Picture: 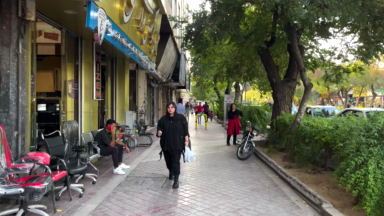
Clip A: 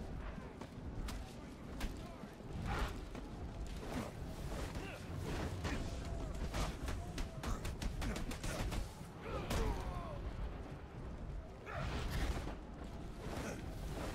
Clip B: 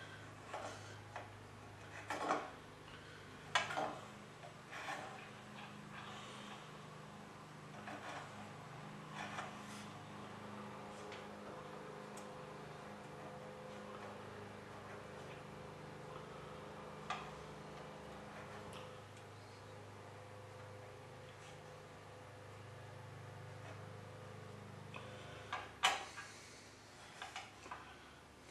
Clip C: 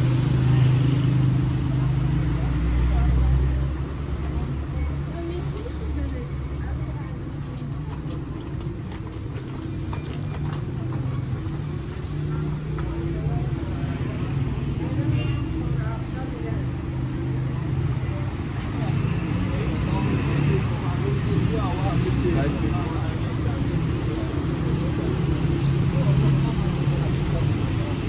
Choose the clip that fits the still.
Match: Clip C